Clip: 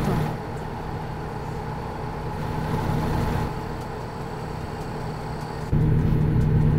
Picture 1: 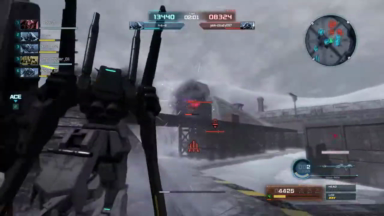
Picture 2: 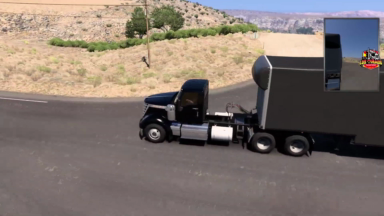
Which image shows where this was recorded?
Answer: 2